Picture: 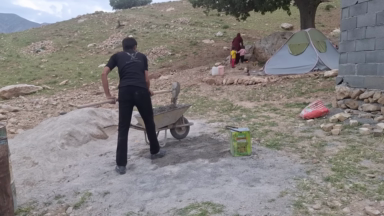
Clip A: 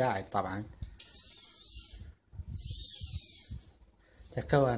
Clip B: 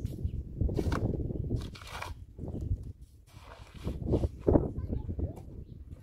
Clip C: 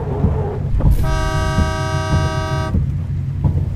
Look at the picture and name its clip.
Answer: B